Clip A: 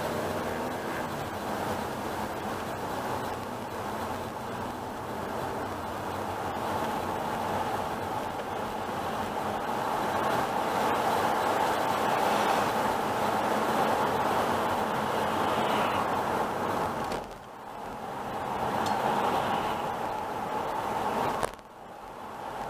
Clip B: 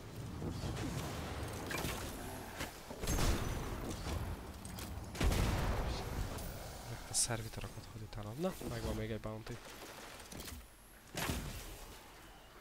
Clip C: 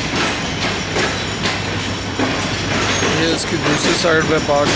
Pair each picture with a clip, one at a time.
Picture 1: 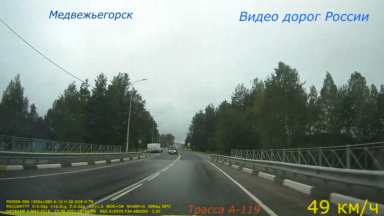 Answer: A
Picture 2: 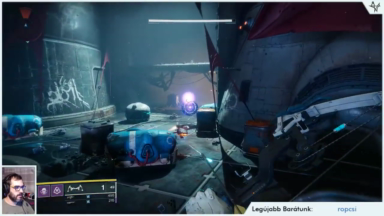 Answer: B